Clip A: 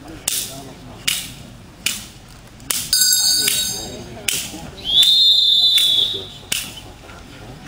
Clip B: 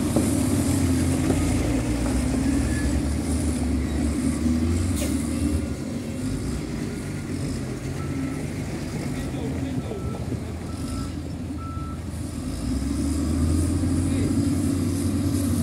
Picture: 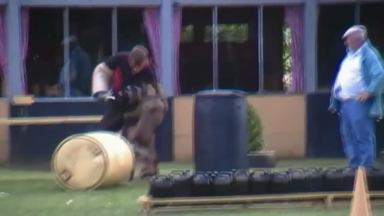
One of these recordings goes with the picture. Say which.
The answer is A